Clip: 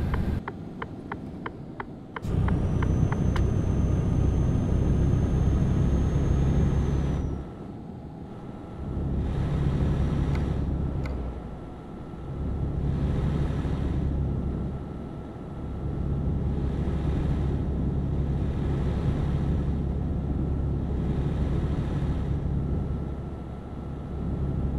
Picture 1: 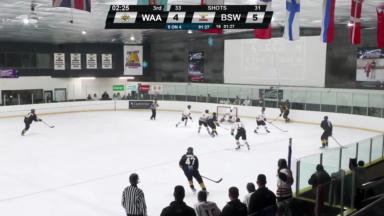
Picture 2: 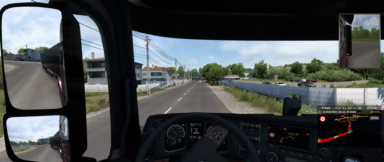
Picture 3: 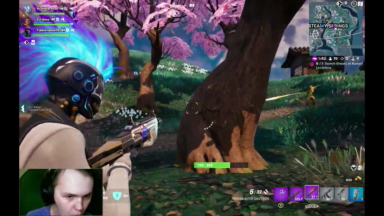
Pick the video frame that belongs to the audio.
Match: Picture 2